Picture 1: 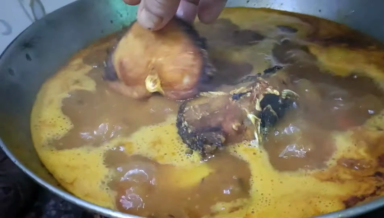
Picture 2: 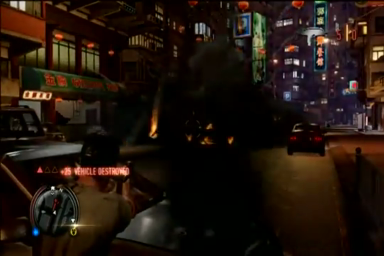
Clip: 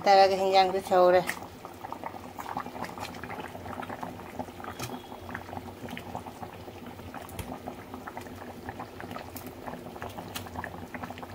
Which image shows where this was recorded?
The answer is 1